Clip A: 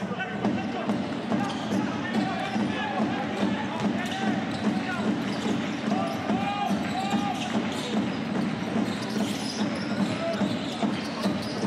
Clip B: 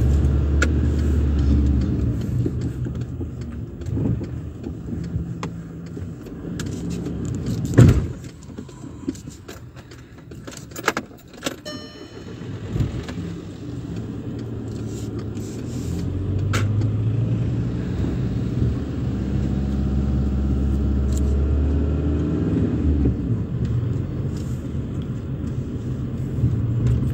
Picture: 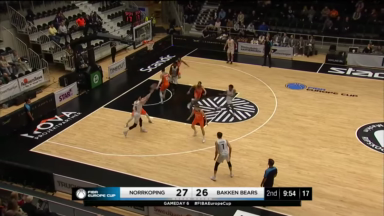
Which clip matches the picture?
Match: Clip A